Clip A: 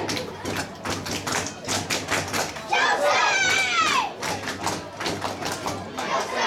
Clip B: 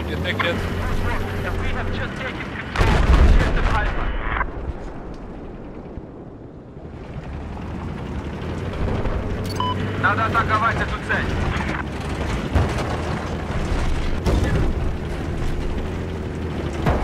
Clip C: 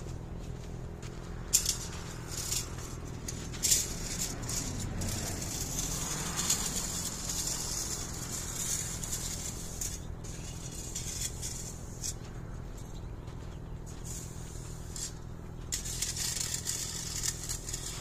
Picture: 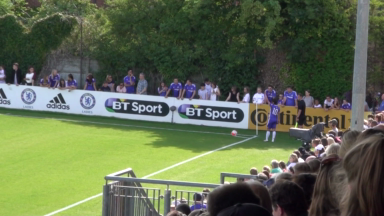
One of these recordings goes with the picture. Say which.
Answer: A